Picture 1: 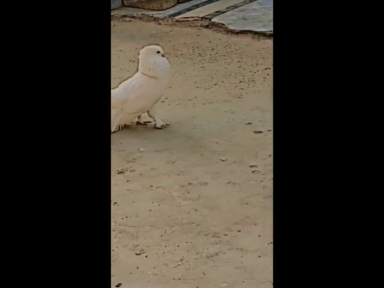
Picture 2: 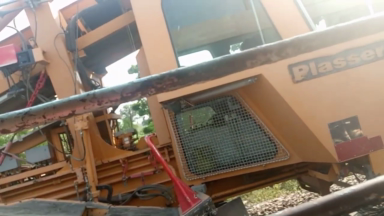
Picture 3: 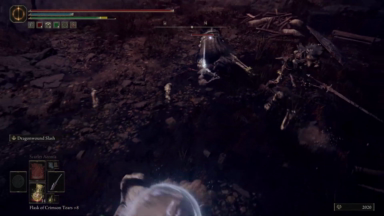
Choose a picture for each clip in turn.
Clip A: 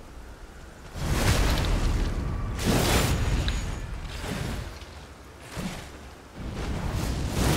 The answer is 3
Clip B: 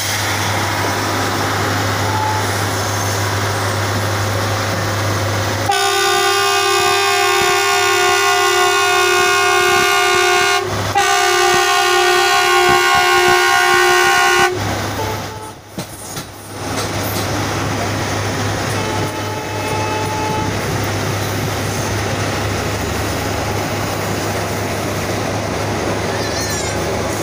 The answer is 2